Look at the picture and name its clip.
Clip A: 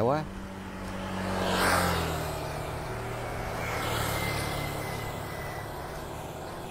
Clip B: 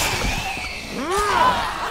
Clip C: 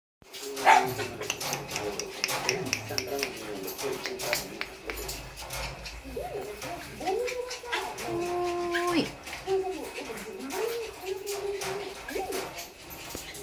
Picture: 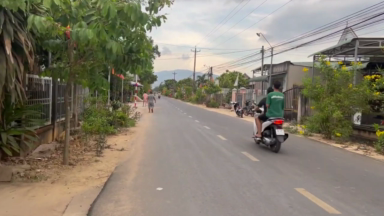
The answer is A